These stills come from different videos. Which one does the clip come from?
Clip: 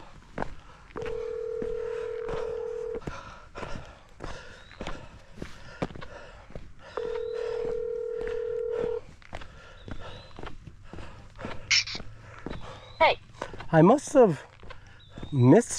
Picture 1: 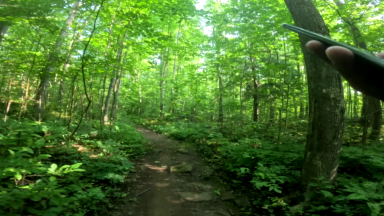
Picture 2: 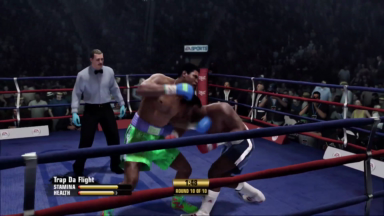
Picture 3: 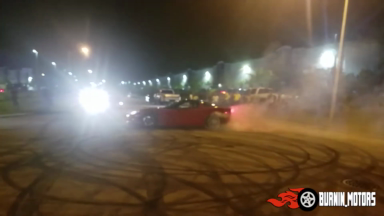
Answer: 1